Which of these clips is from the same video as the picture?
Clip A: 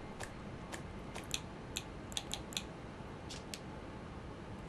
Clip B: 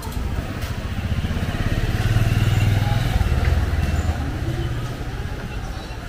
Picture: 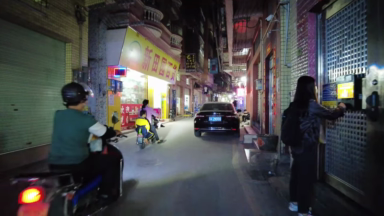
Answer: B